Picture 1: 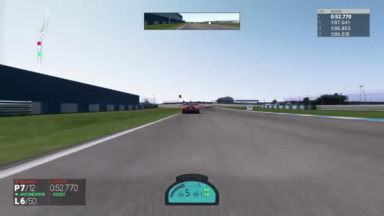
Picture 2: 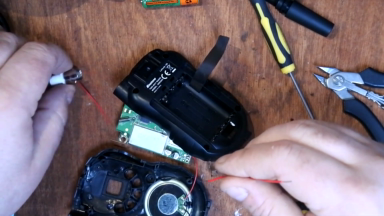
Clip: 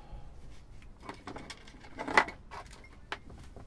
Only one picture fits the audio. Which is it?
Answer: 2